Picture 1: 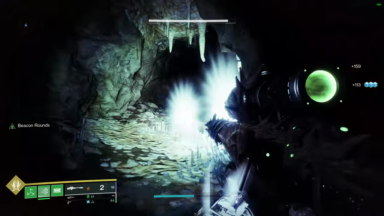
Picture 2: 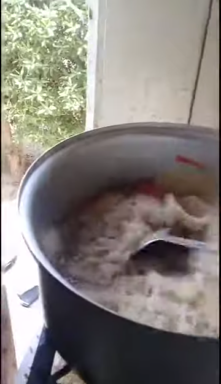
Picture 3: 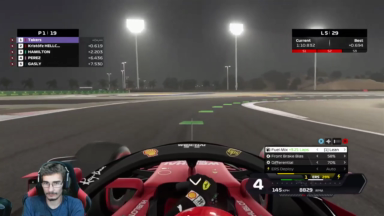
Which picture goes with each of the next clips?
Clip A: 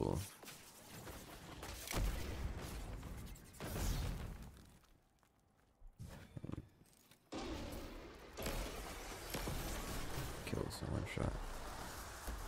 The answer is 1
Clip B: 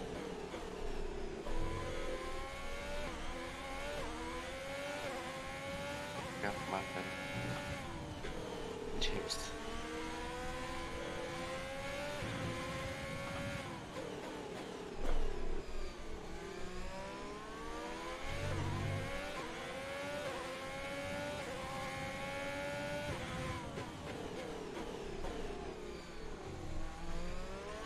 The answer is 3